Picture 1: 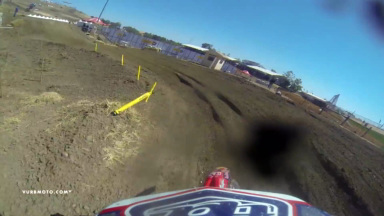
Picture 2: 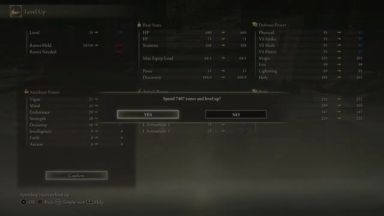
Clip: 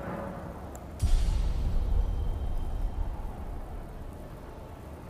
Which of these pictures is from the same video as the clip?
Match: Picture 2